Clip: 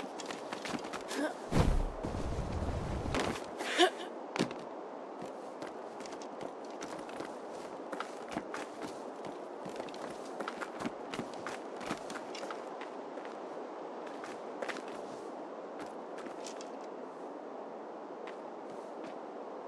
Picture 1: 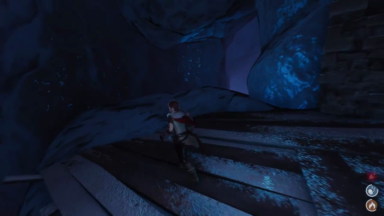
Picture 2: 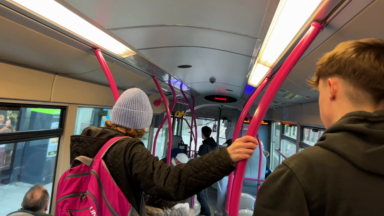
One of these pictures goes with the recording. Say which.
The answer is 1